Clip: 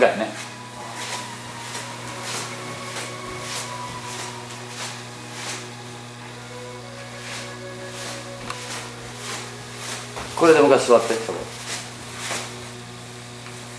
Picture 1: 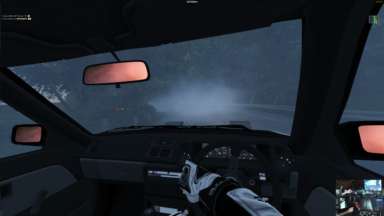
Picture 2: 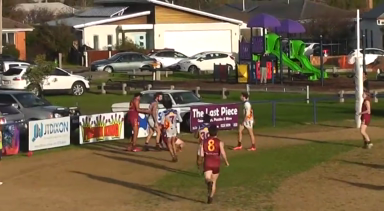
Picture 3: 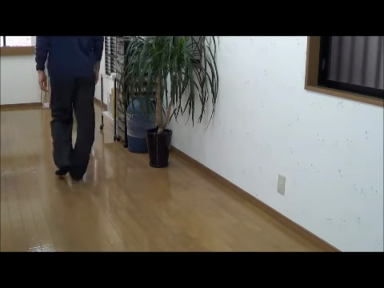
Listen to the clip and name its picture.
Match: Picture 3